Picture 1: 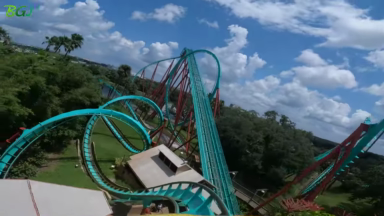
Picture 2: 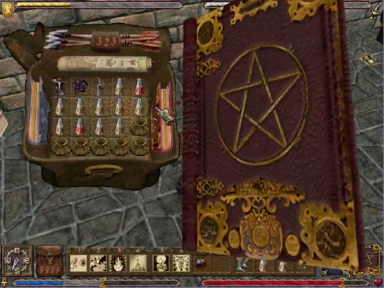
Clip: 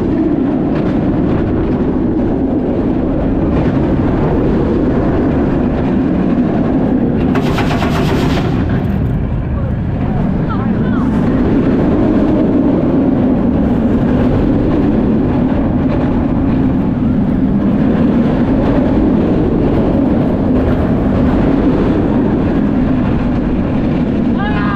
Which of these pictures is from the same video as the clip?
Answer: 1